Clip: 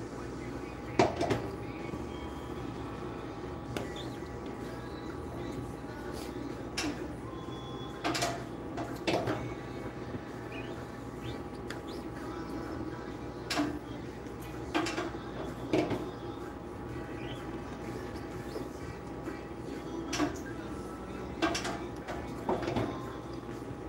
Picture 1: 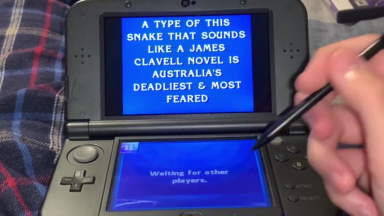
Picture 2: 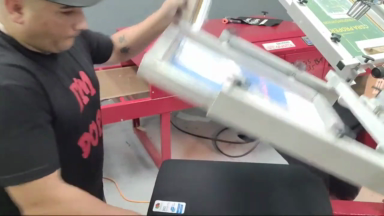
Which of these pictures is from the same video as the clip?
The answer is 2